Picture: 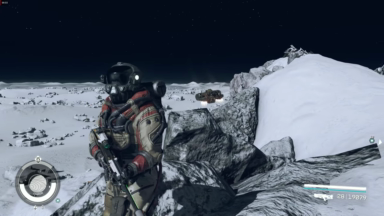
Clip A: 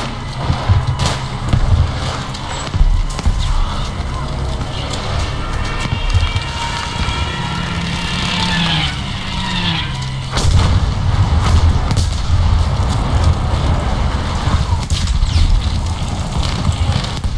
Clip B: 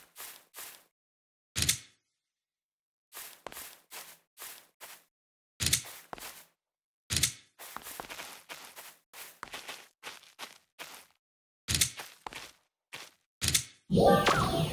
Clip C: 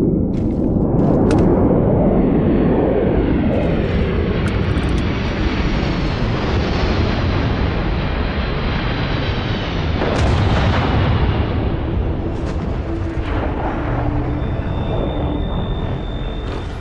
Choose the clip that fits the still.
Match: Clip C